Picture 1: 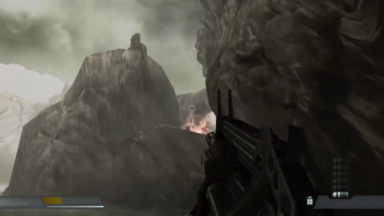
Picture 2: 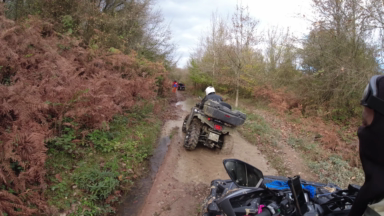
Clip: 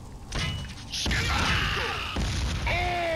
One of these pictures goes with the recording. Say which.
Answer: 1